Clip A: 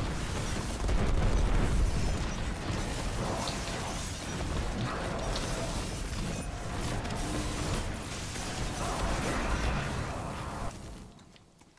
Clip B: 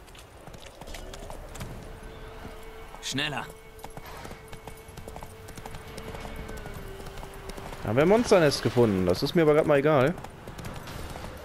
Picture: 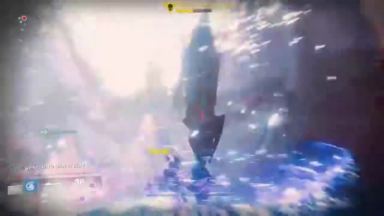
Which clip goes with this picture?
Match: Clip A